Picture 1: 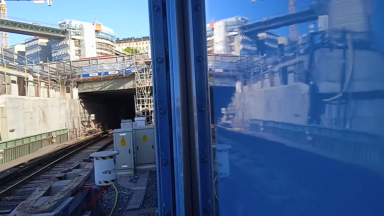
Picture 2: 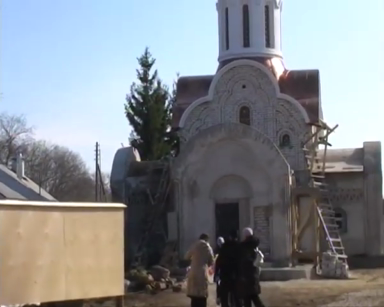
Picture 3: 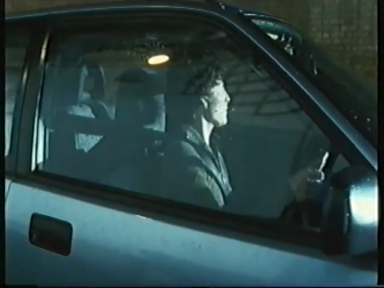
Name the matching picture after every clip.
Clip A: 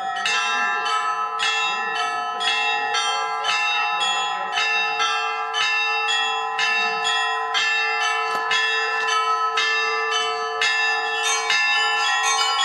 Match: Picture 2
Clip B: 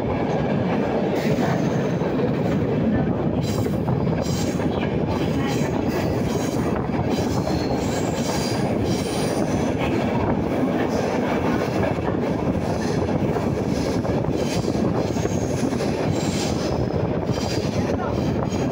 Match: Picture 1